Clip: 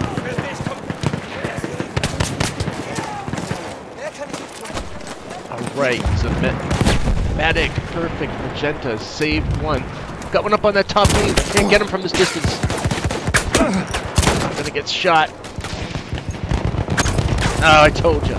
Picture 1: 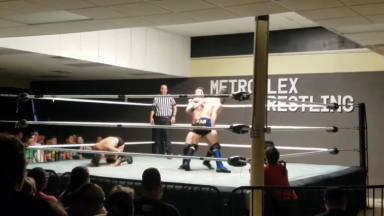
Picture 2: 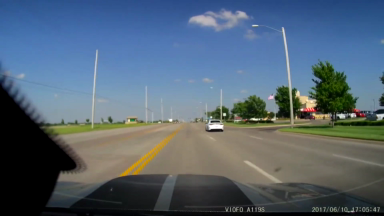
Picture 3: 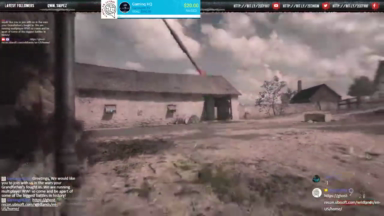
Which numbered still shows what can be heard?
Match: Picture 3